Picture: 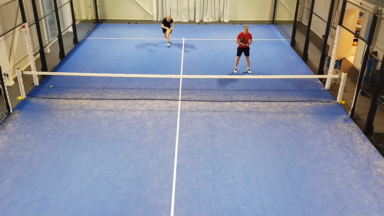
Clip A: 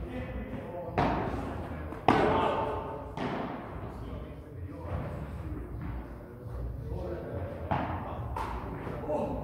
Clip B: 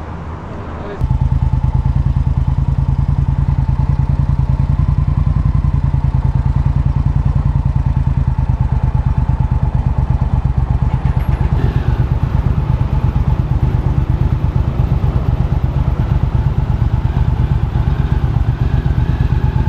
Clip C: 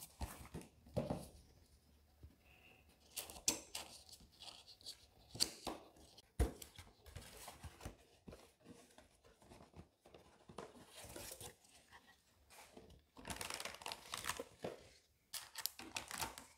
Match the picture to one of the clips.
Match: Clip A